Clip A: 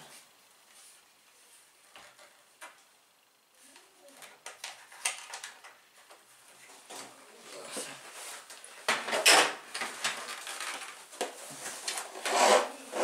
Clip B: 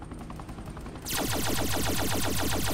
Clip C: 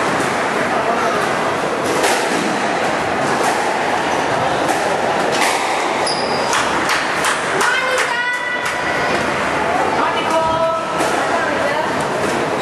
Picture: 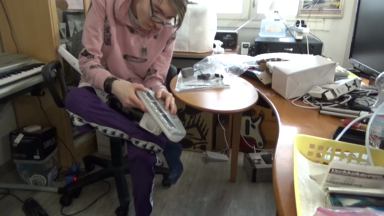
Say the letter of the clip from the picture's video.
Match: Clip A